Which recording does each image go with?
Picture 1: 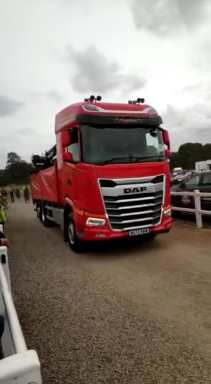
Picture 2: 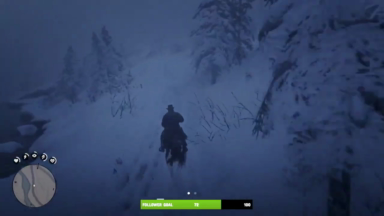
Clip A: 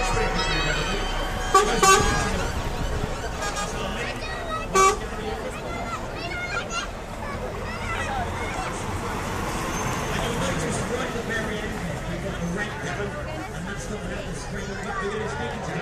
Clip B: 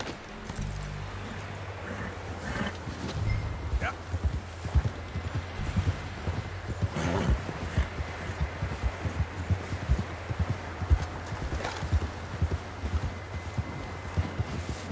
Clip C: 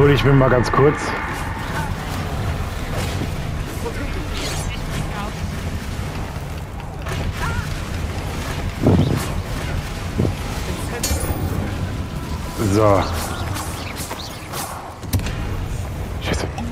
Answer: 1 A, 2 B